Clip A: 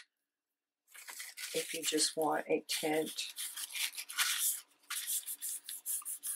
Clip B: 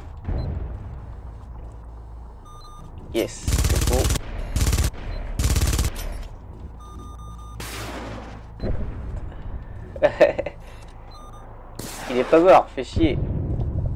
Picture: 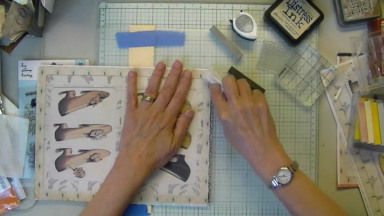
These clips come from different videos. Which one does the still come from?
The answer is A